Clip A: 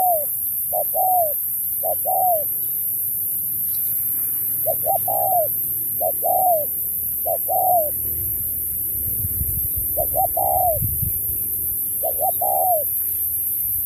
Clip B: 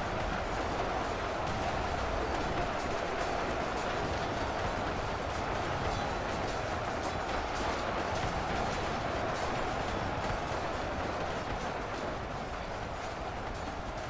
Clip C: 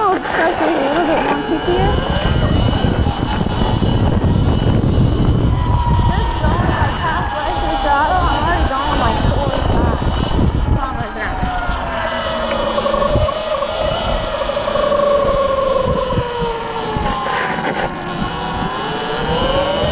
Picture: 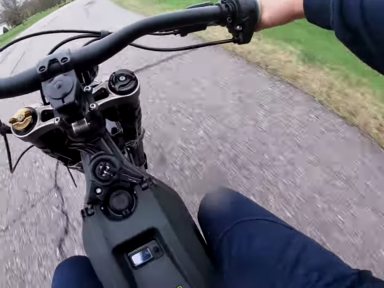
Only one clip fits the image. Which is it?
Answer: C